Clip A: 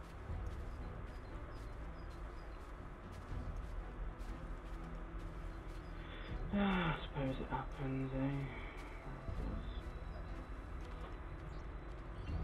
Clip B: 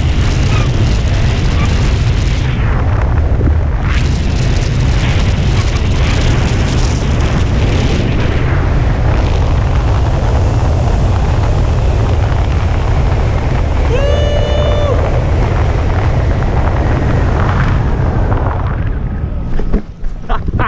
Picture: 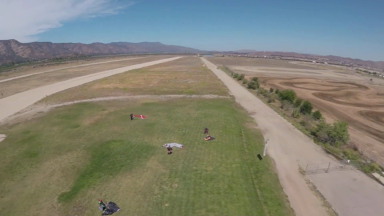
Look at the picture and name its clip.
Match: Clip B